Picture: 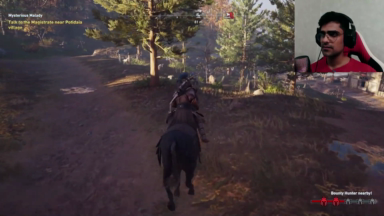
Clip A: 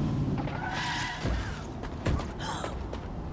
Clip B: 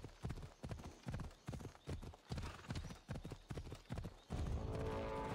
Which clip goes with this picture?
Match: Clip B